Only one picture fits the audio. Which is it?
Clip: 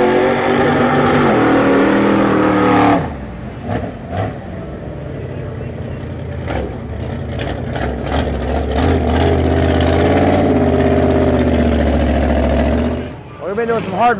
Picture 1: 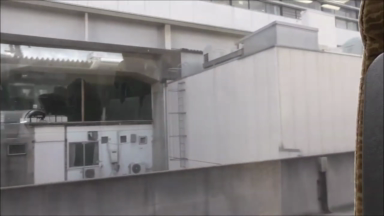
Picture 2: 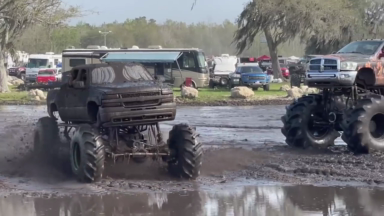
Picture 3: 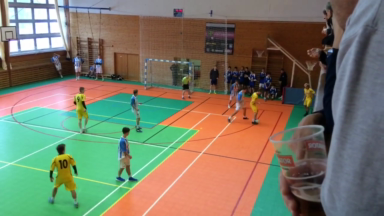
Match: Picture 2